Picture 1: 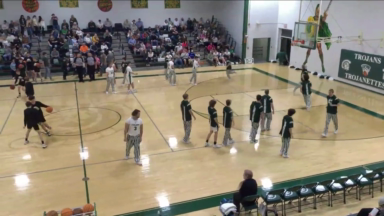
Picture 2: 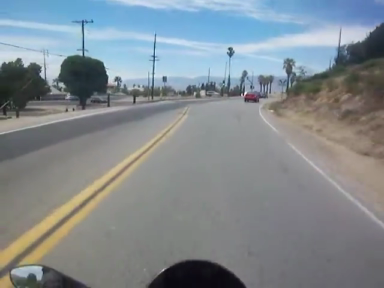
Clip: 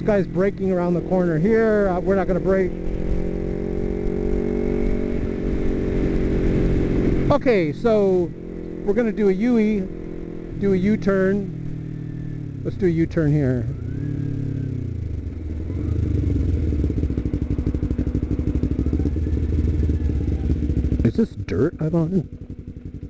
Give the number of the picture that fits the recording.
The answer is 2